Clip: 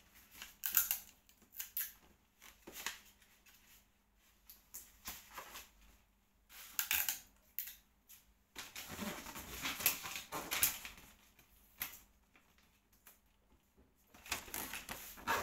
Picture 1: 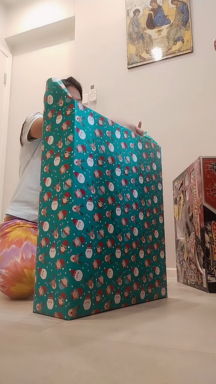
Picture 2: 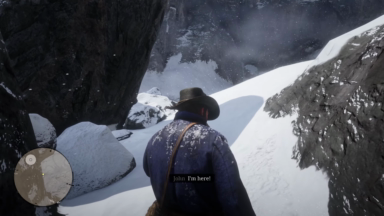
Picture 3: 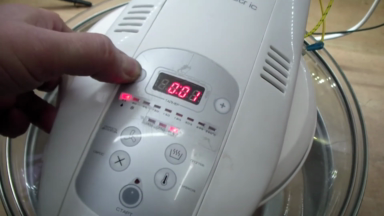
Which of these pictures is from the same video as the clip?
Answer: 1